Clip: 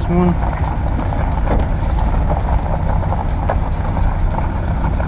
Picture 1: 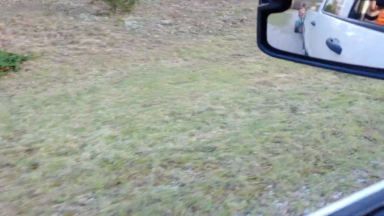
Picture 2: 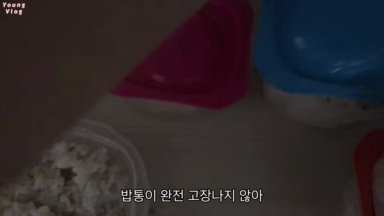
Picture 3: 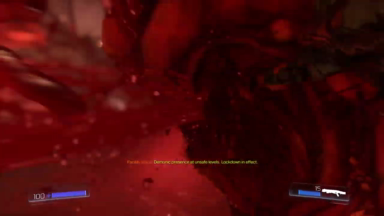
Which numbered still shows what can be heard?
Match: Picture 1